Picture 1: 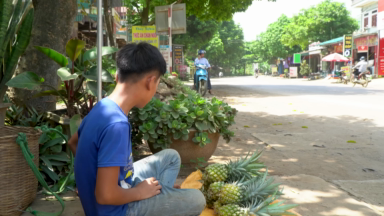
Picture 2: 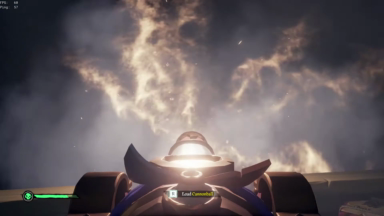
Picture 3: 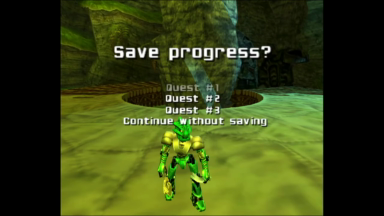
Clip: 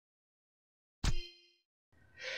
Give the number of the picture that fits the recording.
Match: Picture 3